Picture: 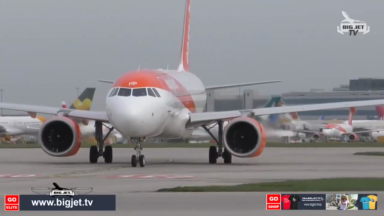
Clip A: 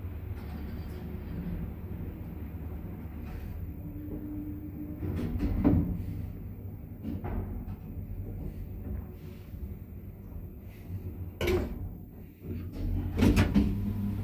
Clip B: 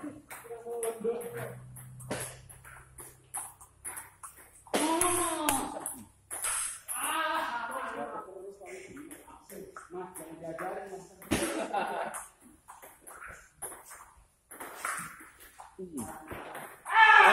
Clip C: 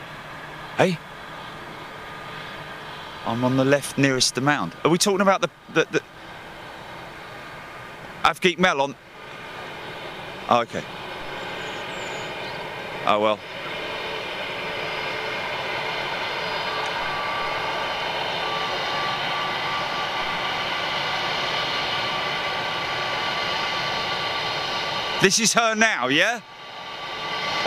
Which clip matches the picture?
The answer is C